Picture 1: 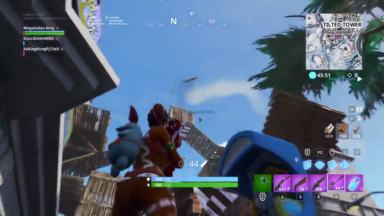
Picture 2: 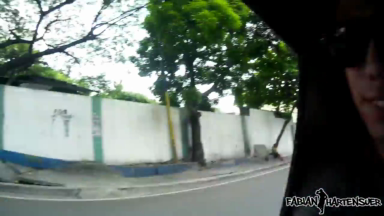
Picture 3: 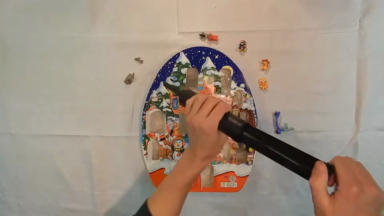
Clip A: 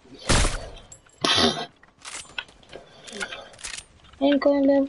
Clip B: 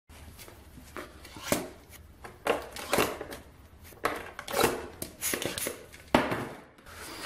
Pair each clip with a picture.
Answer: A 1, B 3